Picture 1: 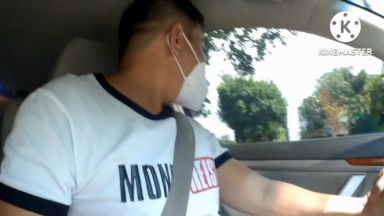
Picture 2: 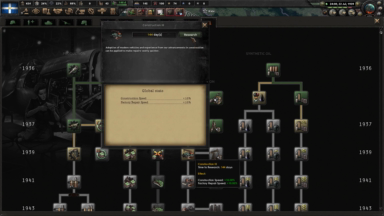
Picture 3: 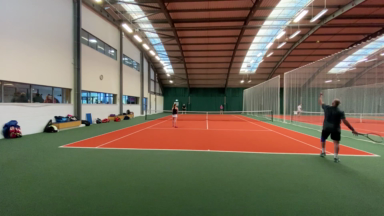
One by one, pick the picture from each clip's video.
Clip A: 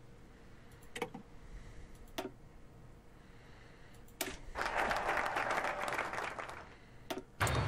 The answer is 2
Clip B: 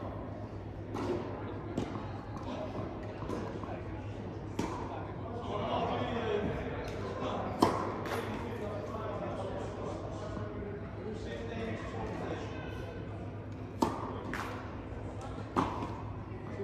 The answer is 3